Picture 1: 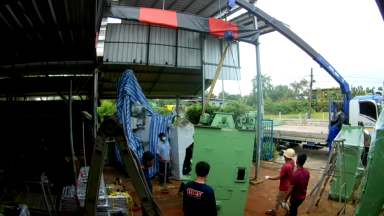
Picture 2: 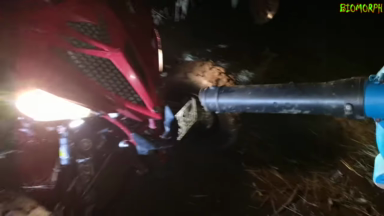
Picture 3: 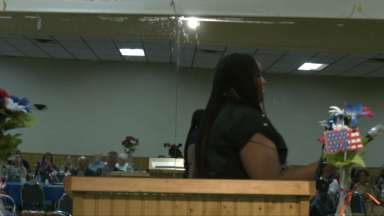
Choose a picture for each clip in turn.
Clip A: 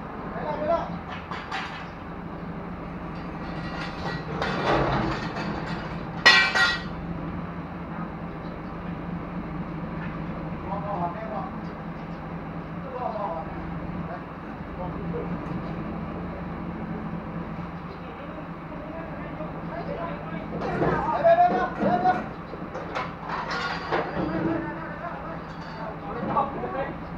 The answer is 1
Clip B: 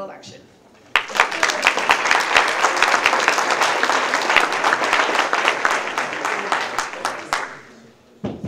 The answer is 3